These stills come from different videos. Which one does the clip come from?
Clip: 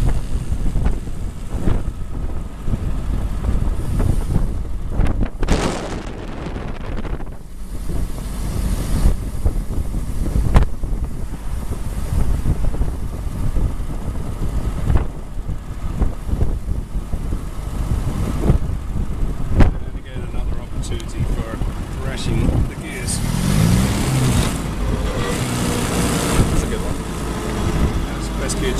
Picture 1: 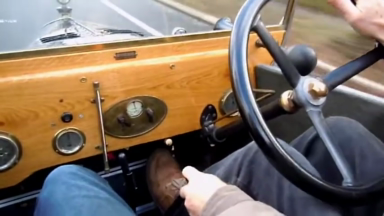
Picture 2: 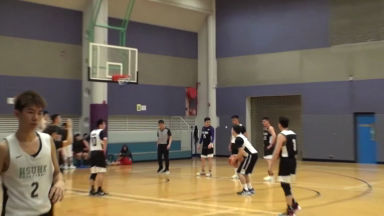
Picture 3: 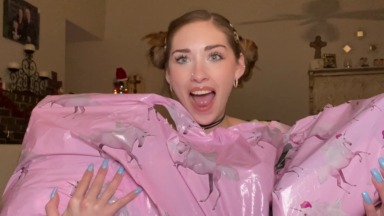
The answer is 1